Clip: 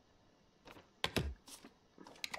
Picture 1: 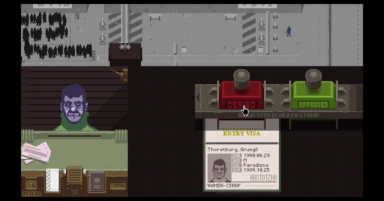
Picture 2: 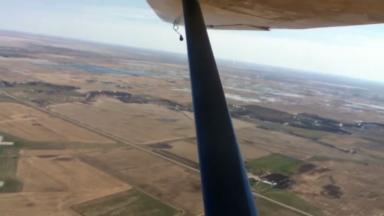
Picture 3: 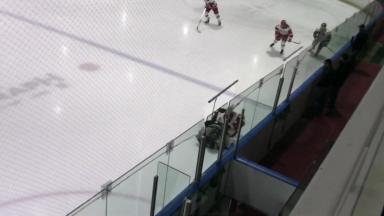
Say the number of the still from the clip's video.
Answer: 1